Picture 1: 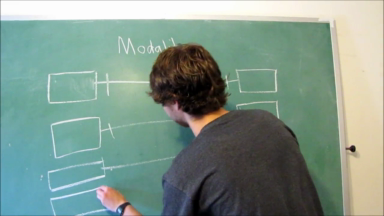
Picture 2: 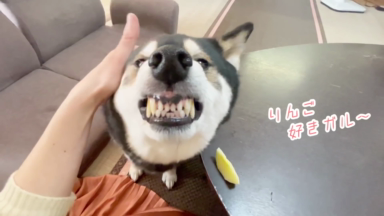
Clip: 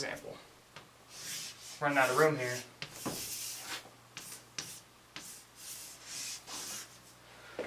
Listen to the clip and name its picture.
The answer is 1